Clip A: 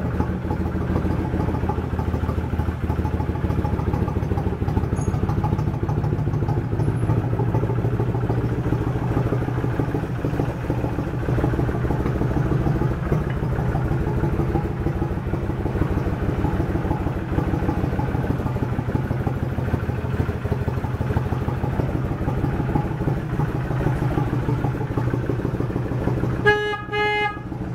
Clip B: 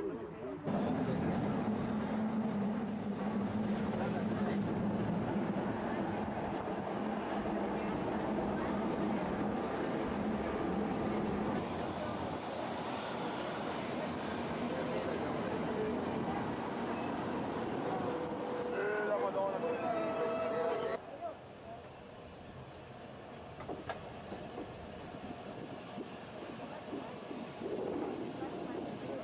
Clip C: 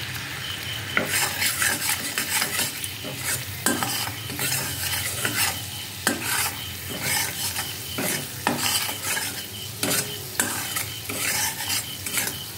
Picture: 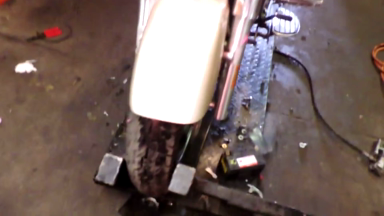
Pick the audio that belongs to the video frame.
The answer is A